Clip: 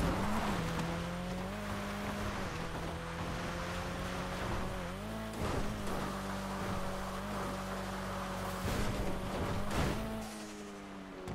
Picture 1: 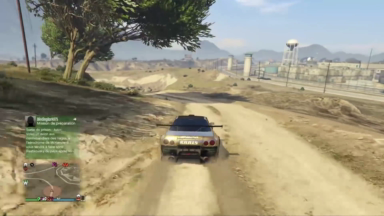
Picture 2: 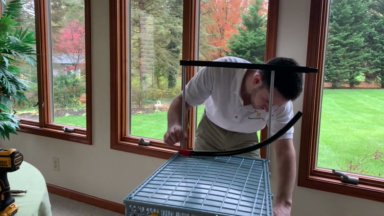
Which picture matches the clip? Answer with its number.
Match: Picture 1